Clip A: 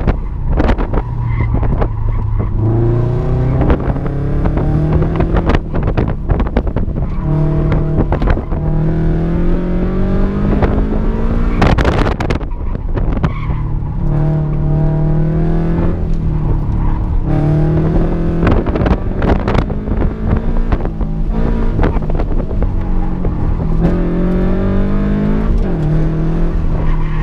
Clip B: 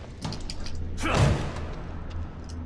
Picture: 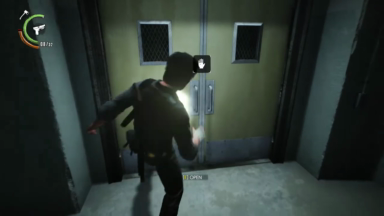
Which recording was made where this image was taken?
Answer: B